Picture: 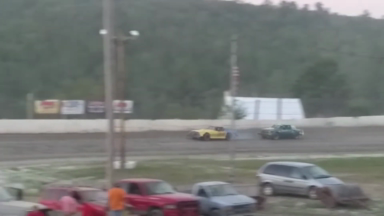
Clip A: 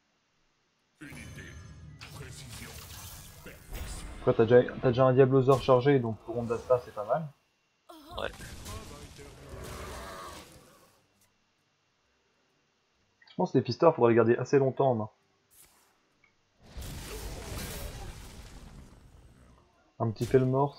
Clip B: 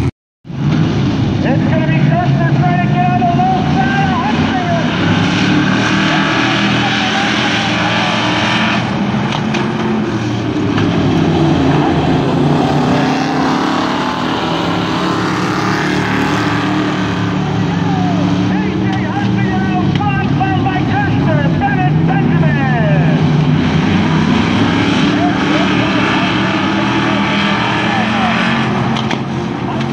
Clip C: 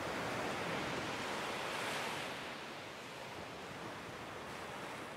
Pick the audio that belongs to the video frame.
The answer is B